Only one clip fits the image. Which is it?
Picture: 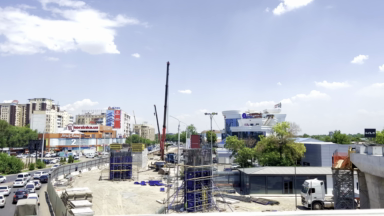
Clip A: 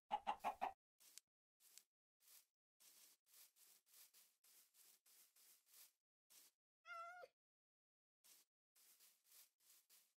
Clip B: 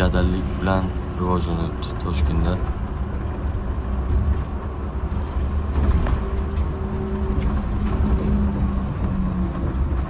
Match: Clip B